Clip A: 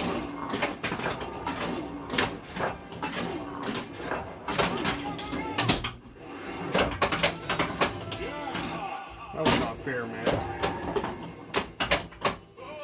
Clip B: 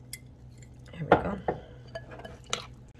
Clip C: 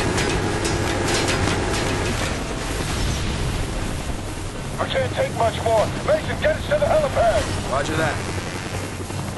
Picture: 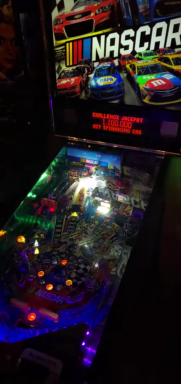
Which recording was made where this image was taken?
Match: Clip A